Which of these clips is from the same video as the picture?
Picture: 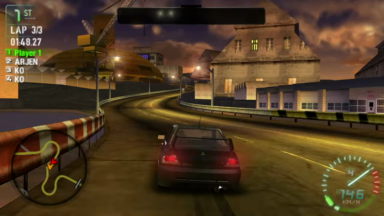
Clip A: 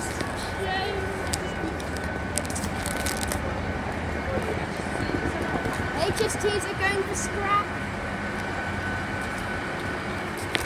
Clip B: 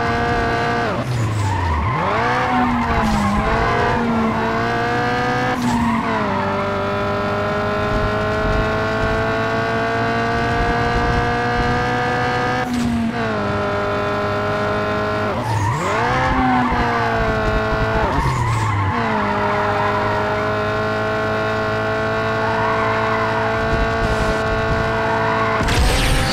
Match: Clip B